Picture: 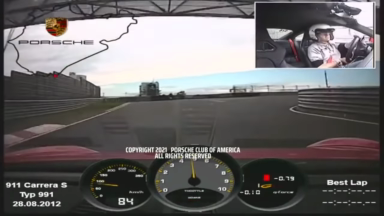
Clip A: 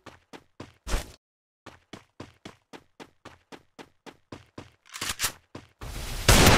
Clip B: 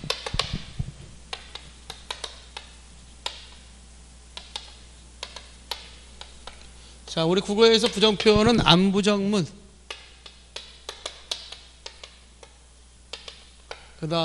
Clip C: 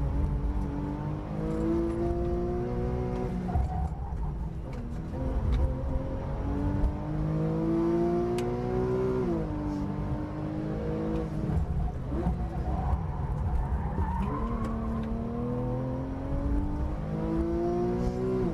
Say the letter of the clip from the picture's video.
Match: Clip C